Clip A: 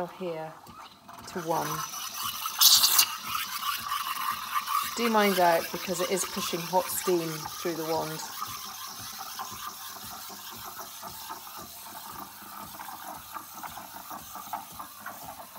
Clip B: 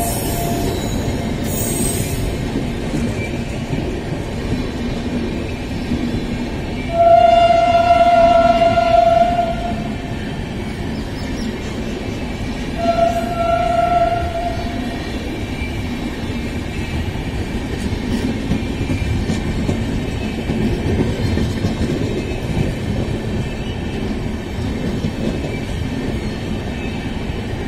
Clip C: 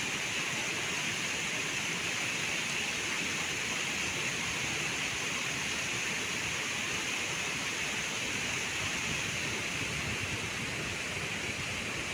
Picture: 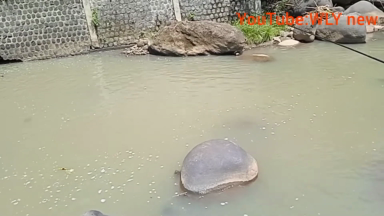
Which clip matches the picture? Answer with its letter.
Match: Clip C